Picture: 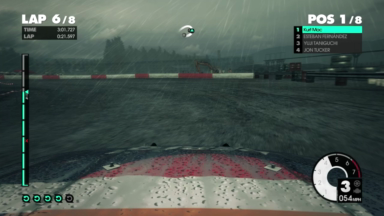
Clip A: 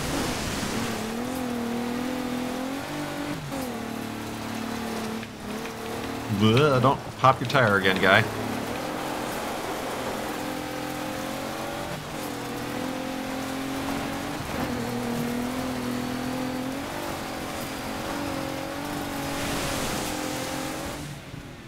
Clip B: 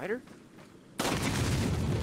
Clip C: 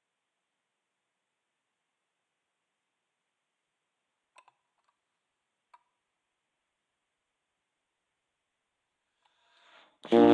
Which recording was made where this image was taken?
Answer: A